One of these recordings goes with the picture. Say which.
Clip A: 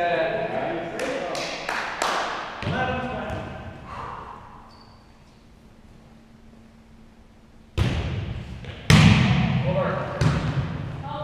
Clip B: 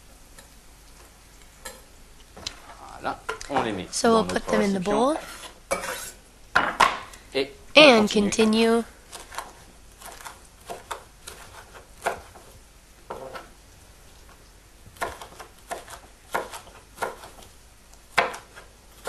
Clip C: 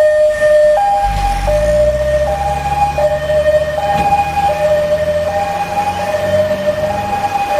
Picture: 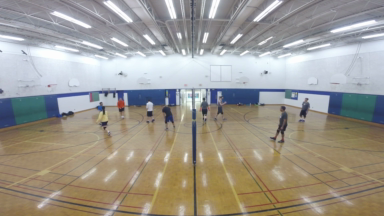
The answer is A